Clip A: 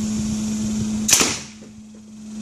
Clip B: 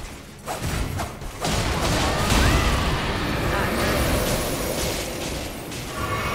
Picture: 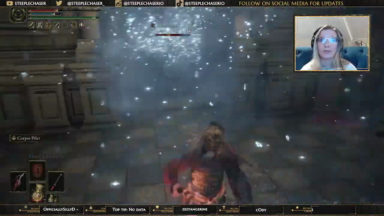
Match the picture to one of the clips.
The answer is B